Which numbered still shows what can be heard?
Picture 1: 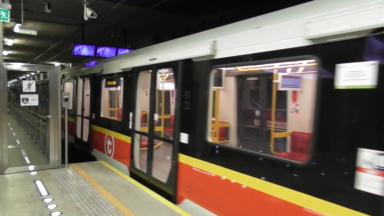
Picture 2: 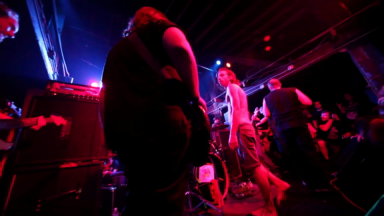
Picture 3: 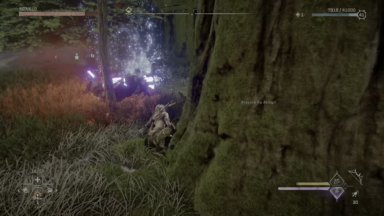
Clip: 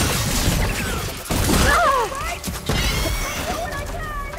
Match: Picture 3